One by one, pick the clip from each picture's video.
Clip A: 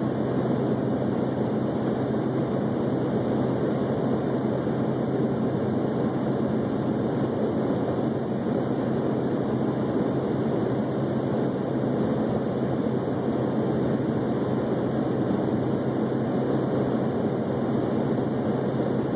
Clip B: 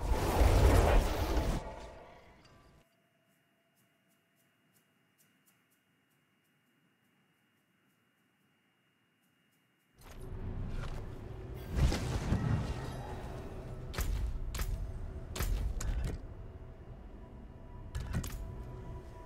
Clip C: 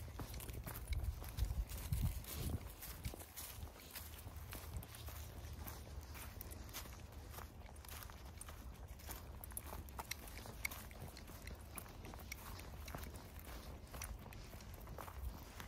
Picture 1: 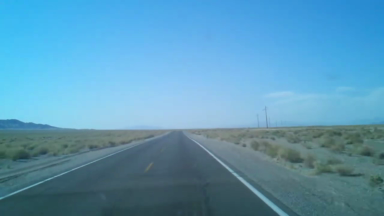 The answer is A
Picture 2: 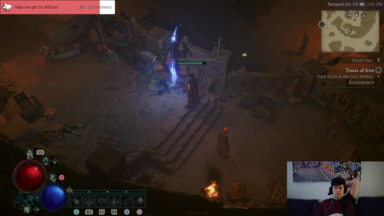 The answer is B